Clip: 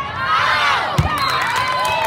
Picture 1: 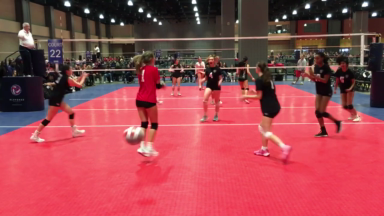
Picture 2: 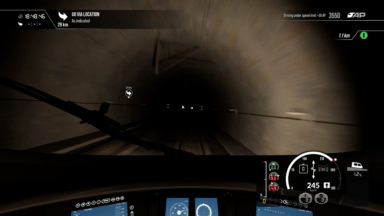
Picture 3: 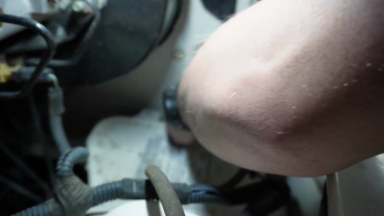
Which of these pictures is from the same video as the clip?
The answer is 1